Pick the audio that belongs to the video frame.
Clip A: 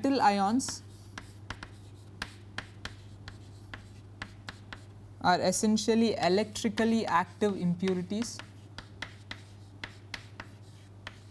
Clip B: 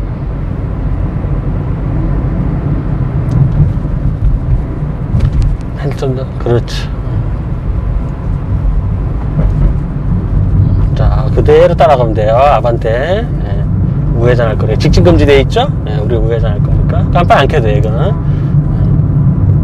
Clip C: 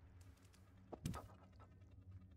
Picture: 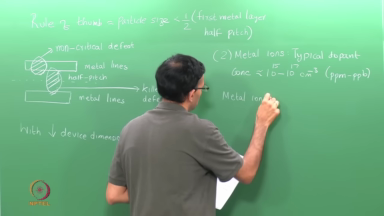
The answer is A